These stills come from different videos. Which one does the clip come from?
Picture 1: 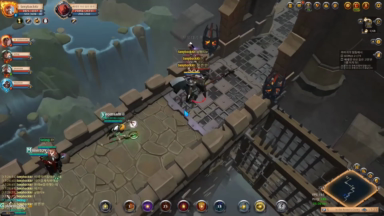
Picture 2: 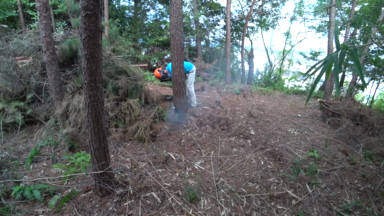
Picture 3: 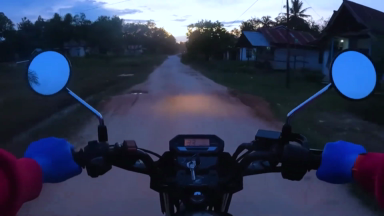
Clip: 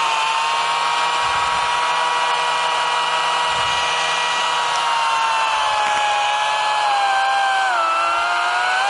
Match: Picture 2